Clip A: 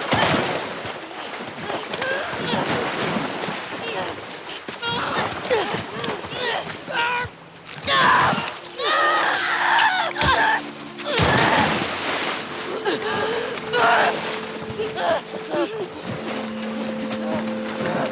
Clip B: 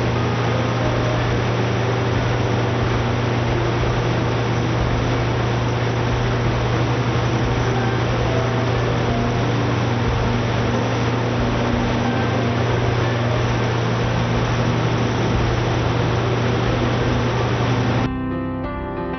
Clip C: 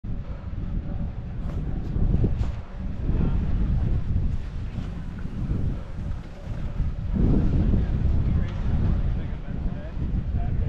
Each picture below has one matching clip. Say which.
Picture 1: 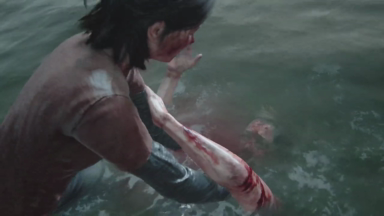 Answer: A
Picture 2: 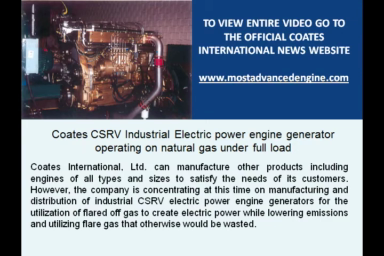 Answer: B